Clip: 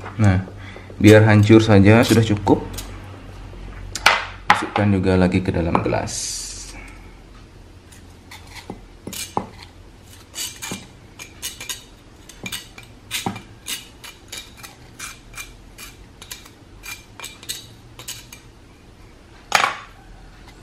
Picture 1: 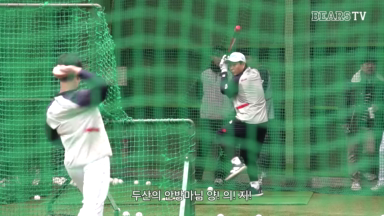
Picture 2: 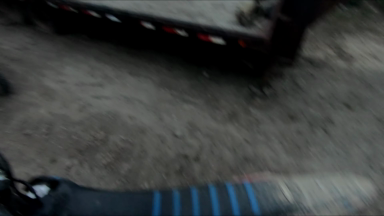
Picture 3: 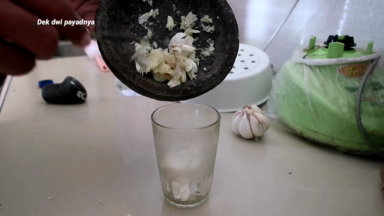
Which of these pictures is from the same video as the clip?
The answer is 3